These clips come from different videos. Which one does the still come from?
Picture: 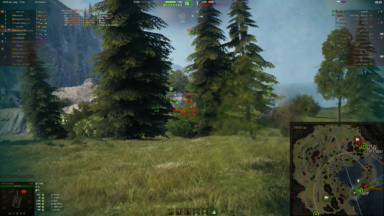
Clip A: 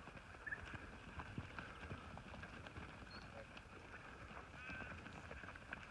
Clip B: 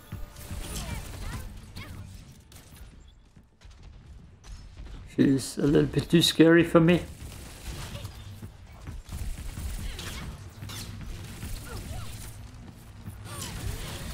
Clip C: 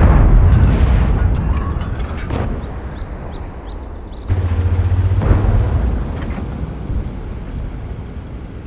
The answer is C